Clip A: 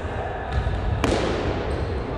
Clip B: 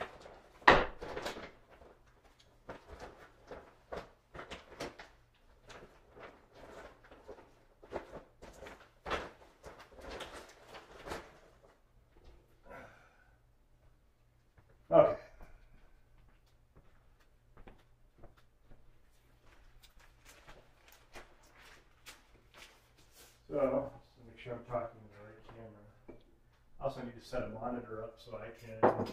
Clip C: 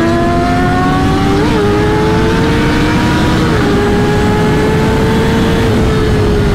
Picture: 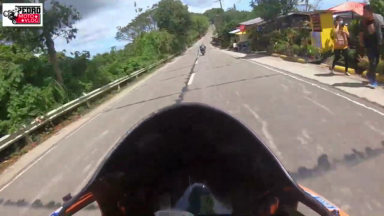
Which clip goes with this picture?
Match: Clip C